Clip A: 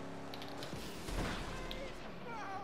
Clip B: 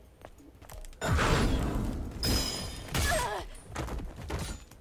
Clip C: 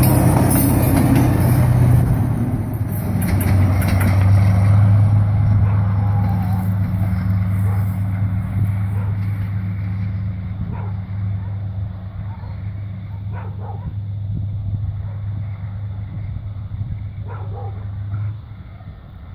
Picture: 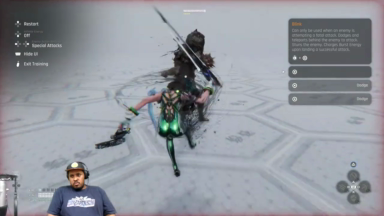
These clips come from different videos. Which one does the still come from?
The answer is B